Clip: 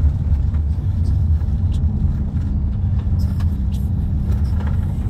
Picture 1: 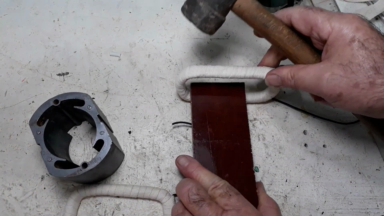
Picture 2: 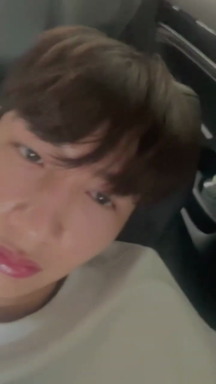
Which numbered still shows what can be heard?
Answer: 2